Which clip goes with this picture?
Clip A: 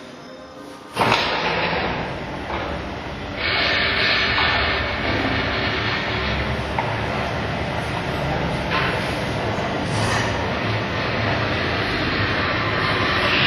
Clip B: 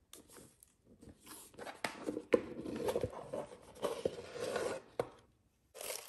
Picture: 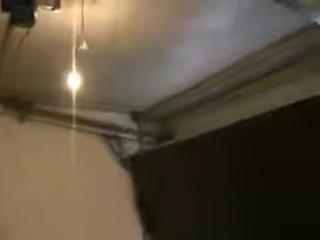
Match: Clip A